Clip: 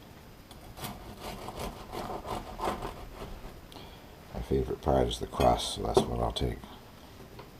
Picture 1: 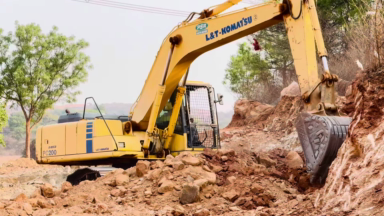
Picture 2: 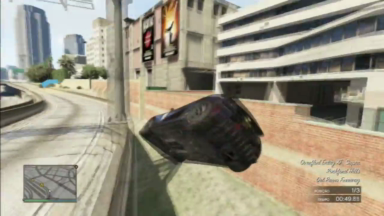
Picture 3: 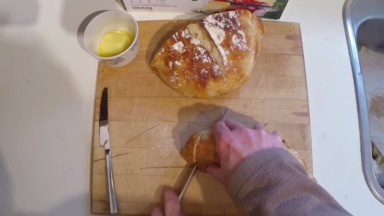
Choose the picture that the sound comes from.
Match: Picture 3